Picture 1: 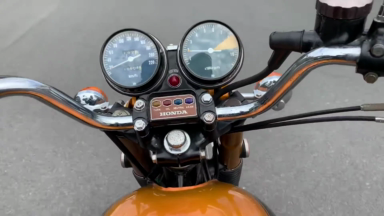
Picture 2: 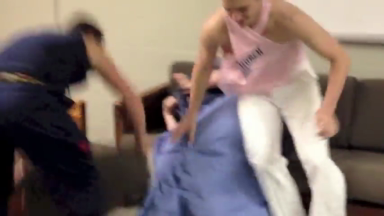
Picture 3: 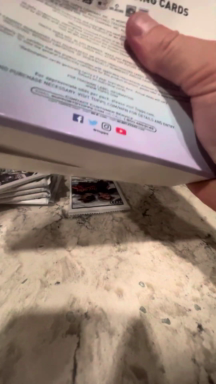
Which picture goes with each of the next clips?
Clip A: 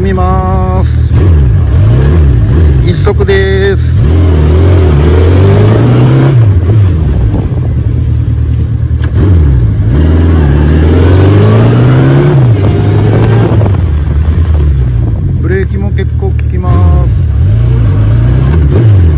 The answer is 1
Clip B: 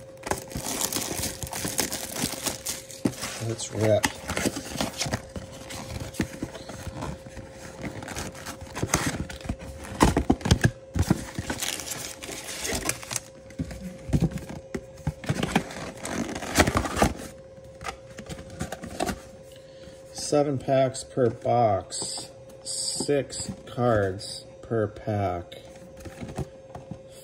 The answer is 3